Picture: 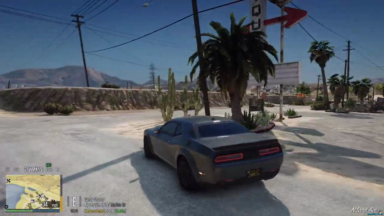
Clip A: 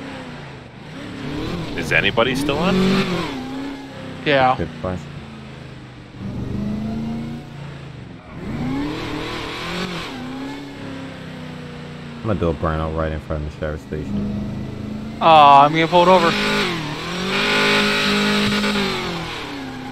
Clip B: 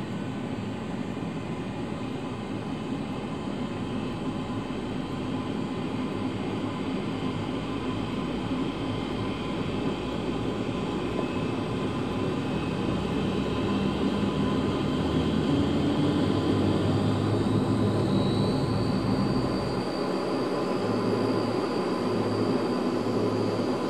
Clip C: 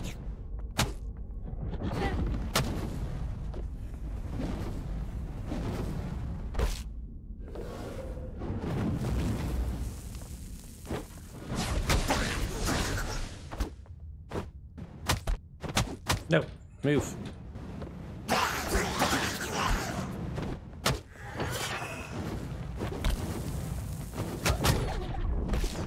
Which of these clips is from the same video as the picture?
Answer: A